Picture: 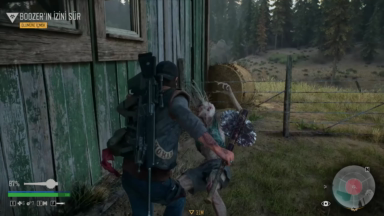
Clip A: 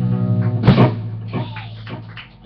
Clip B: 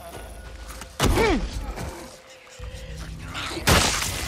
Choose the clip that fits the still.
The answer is B